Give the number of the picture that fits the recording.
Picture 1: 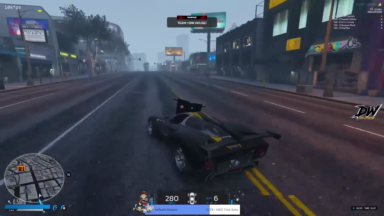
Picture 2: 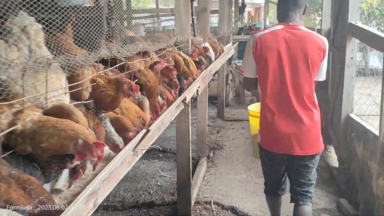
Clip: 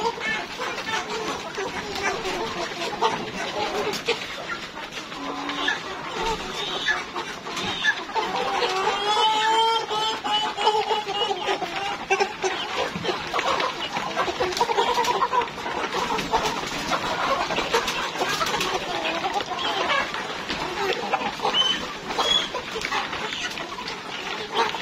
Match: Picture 2